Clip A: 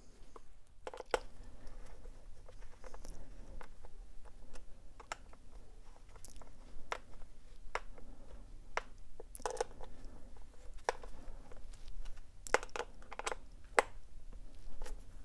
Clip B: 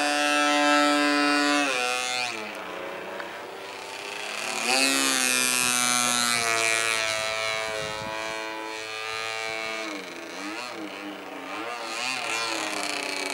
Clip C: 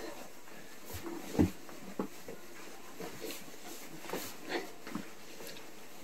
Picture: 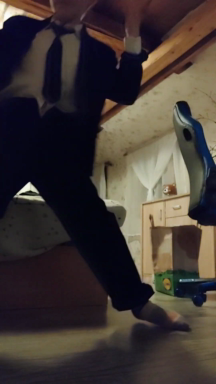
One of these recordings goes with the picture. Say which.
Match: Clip C